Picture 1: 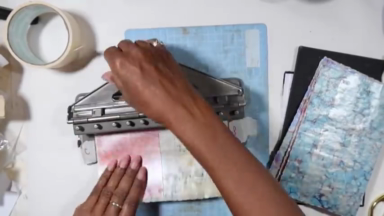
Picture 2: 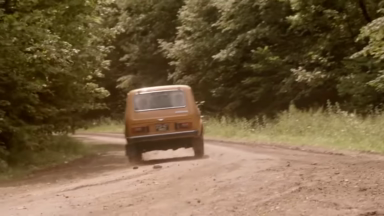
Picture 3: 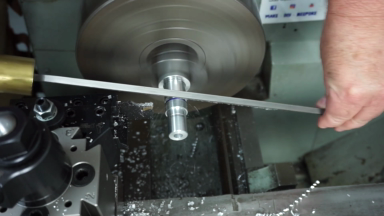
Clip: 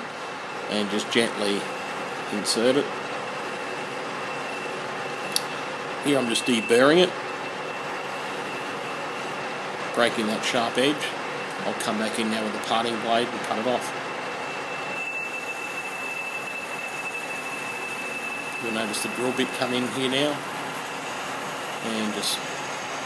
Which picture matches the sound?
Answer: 3